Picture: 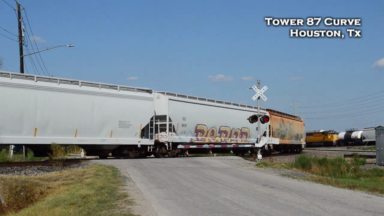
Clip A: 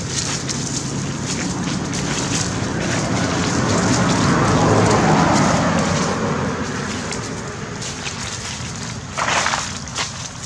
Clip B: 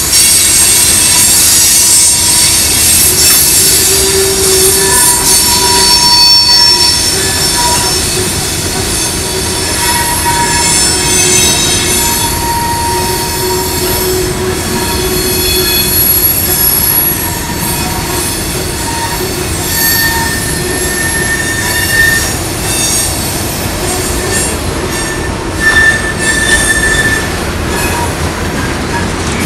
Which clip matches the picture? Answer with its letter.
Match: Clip B